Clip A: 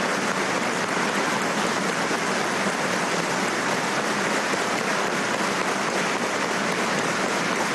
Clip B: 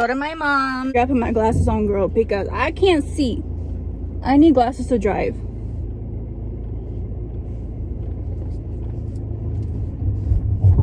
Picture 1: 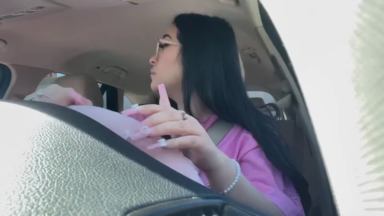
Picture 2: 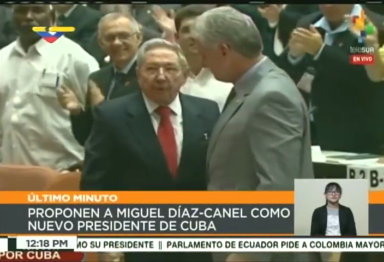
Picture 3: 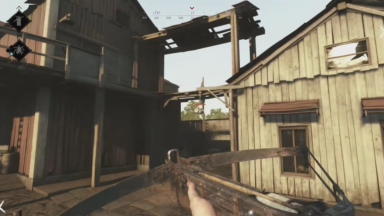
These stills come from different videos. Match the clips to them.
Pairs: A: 2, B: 1